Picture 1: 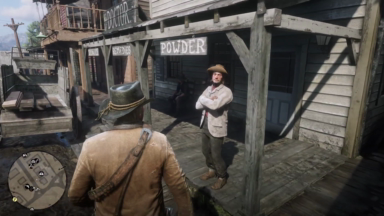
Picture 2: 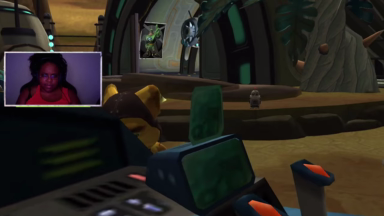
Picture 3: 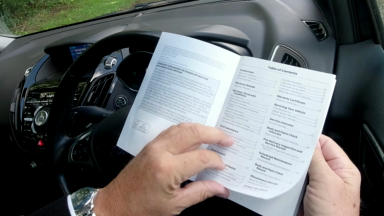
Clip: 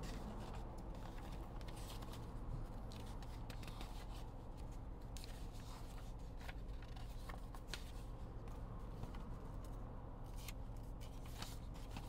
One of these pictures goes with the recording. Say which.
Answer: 3